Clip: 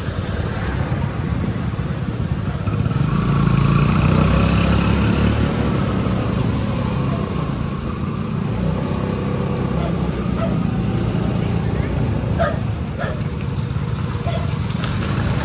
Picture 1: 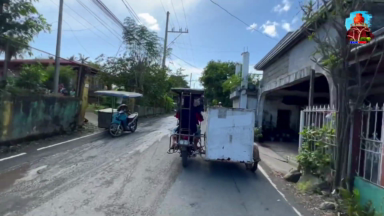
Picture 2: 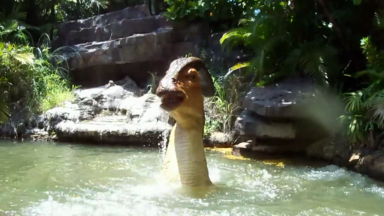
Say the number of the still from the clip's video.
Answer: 1